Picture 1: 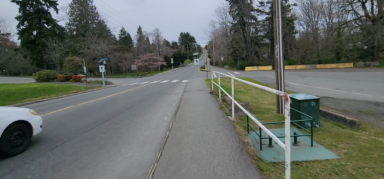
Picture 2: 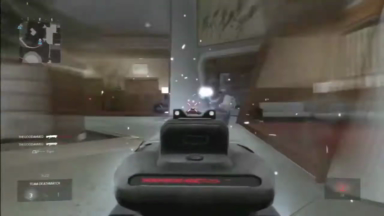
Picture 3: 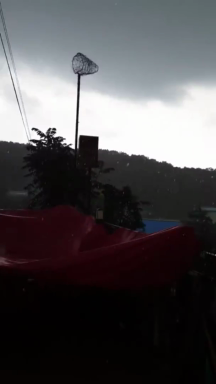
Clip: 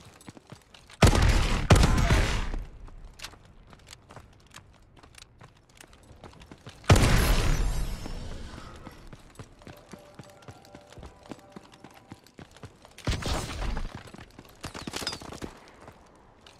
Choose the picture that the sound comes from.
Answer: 2